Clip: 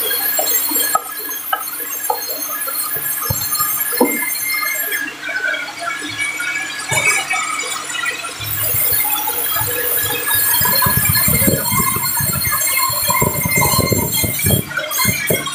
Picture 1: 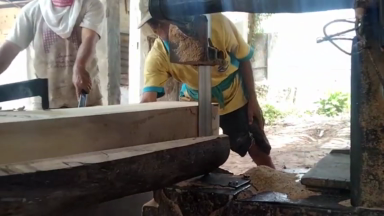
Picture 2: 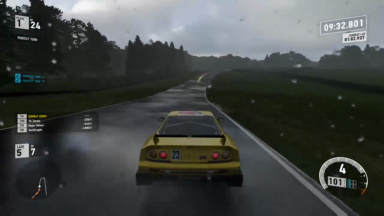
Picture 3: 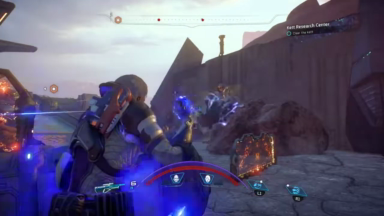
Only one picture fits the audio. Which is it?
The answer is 1